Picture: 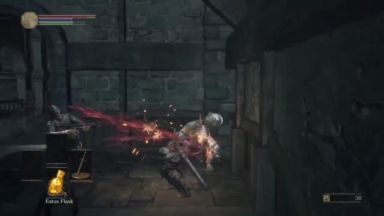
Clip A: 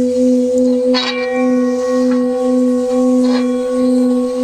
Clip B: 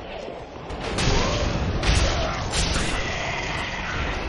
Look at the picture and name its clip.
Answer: B